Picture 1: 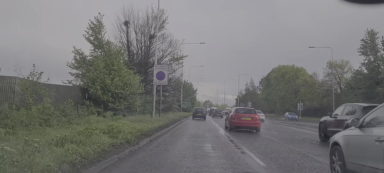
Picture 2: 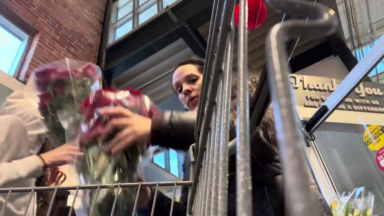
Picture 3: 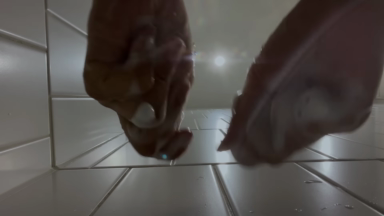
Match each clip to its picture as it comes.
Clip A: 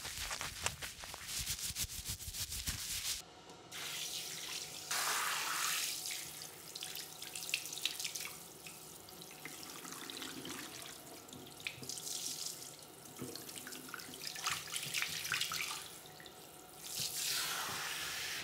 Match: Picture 3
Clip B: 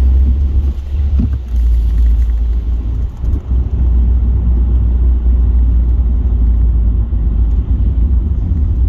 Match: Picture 1